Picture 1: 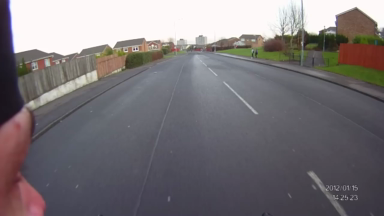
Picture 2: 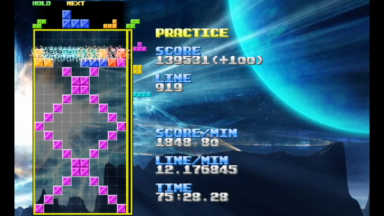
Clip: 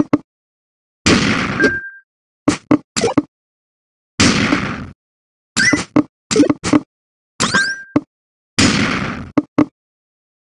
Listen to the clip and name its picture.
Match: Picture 2